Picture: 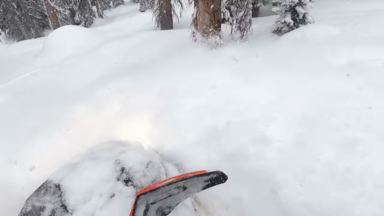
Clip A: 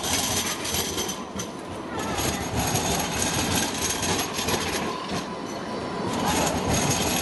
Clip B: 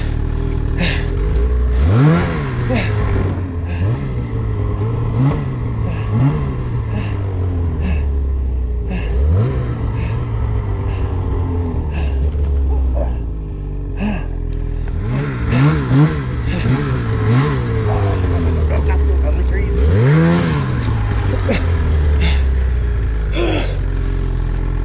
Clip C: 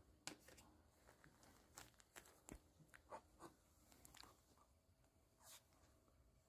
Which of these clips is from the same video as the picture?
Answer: B